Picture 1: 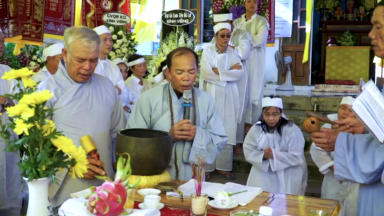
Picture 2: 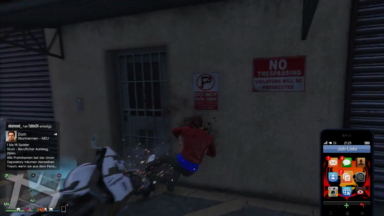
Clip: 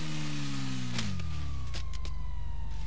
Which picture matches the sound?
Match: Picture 2